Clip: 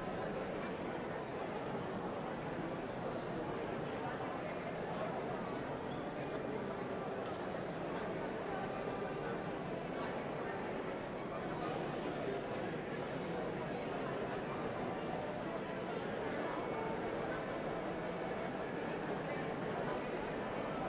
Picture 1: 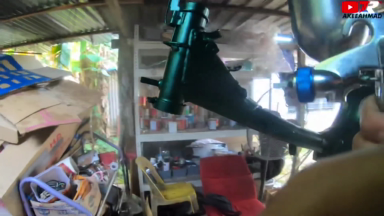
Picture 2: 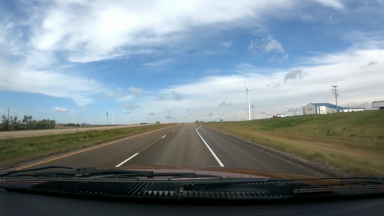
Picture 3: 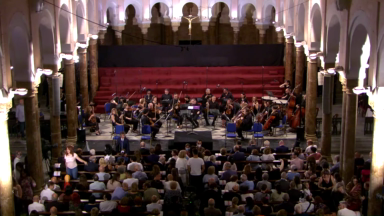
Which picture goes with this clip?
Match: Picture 3